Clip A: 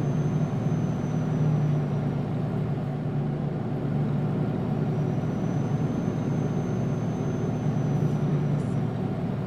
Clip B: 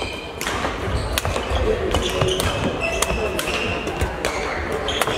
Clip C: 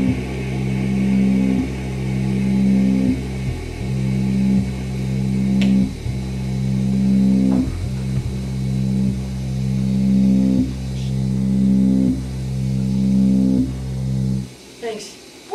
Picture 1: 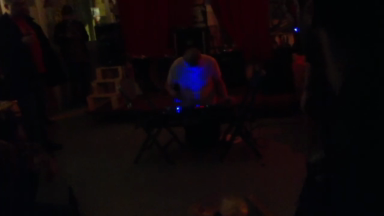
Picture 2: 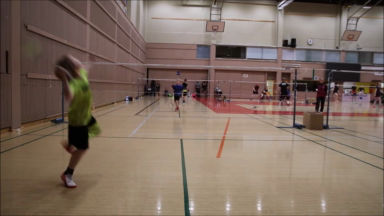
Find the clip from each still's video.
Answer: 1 C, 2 B